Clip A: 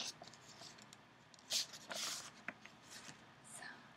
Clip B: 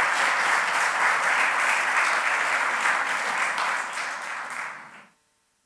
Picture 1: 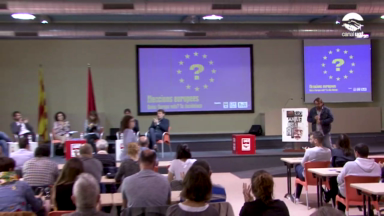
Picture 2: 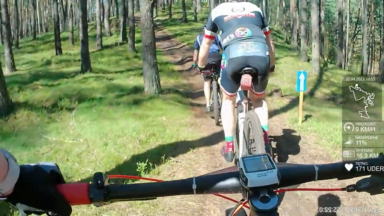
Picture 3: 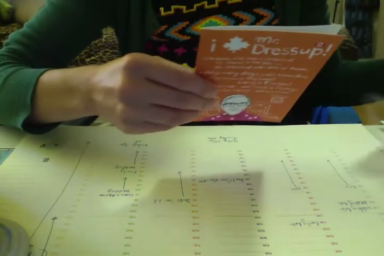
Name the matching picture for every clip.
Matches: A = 3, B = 1